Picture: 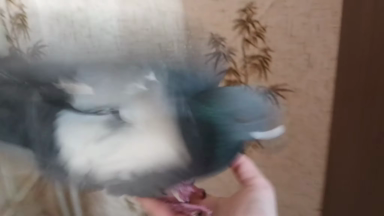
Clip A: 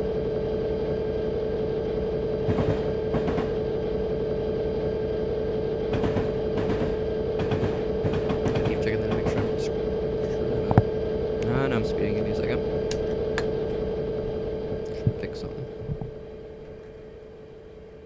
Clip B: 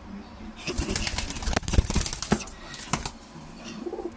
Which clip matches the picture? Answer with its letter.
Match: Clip B